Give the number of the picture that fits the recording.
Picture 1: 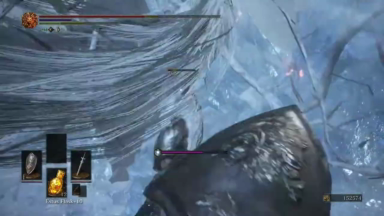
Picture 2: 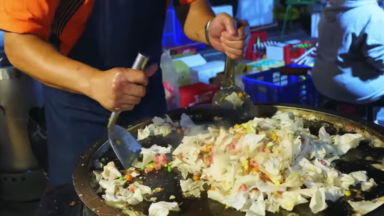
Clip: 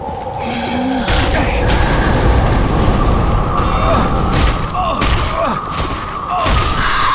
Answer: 1